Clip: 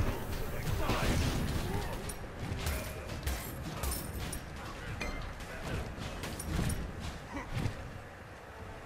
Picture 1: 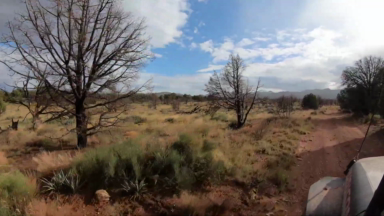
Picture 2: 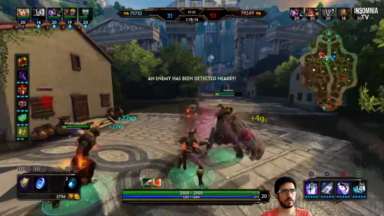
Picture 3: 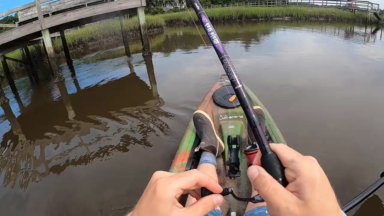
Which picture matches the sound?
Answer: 2